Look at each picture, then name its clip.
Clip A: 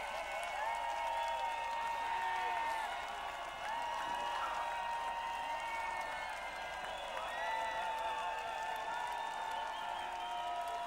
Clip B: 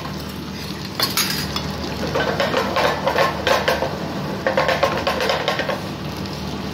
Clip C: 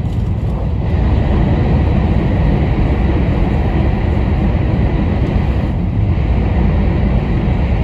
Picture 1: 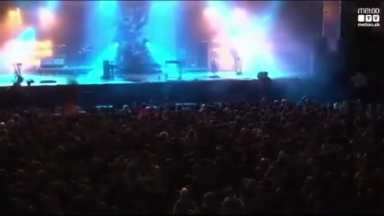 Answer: A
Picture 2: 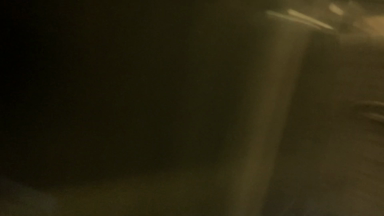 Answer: C